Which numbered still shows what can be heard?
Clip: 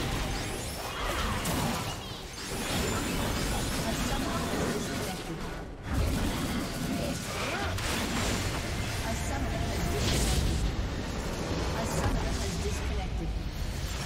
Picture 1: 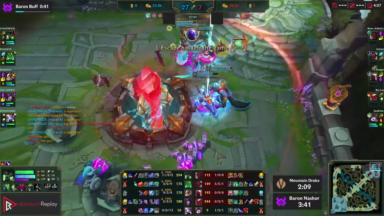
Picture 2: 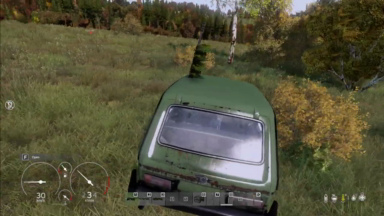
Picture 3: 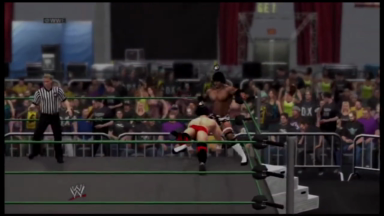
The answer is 1